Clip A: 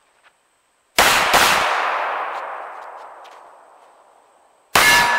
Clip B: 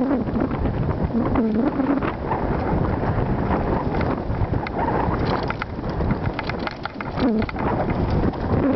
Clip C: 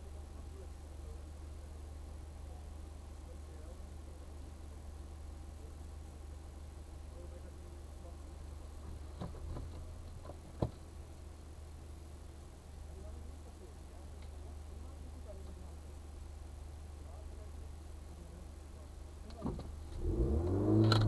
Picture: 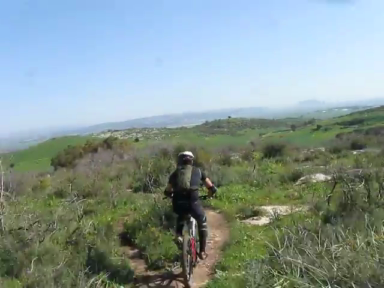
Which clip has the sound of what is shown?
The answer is B